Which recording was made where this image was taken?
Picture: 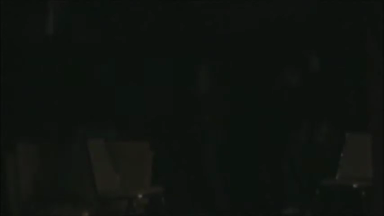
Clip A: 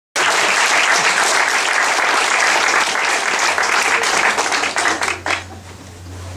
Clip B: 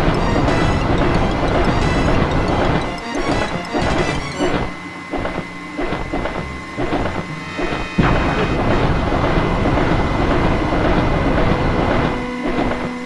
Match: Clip A